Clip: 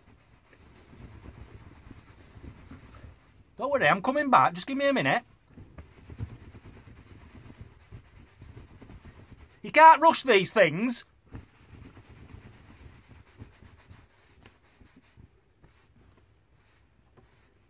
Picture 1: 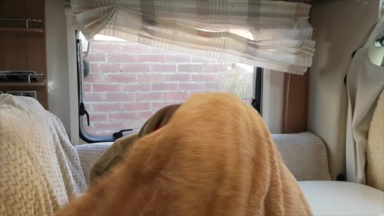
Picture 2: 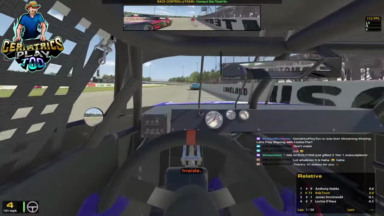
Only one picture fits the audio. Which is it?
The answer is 1